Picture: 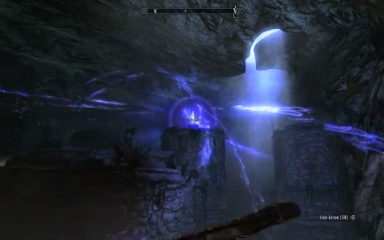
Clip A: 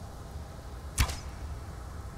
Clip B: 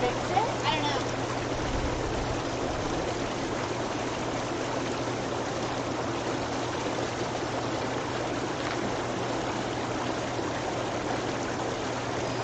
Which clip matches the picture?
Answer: A